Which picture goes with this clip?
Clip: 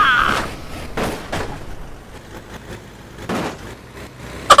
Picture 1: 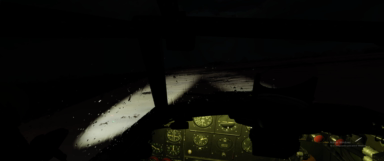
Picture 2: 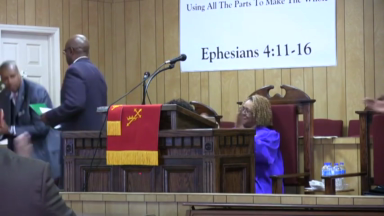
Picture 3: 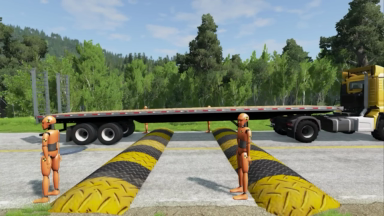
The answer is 3